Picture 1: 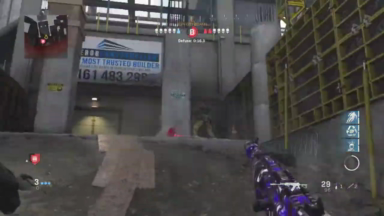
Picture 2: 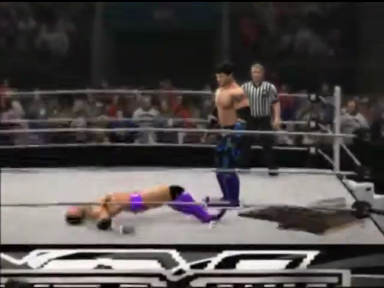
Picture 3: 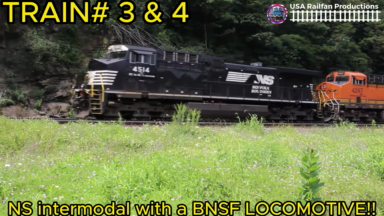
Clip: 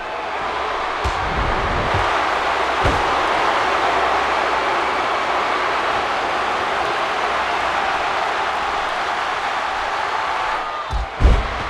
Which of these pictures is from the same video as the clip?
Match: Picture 2